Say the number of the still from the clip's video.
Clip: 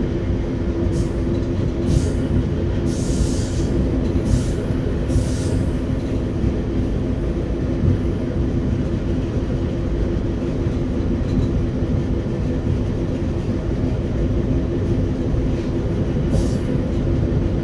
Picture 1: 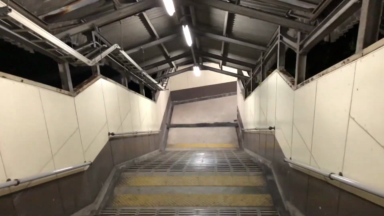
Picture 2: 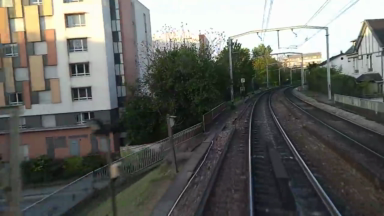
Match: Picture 2